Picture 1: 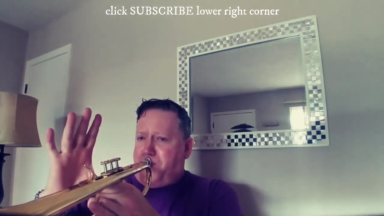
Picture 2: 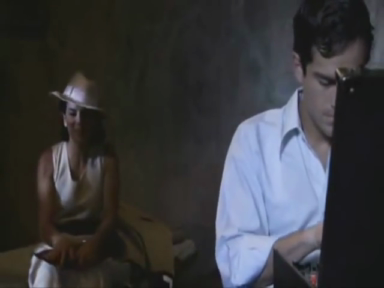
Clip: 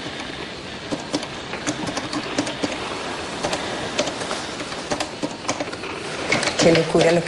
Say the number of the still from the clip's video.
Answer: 2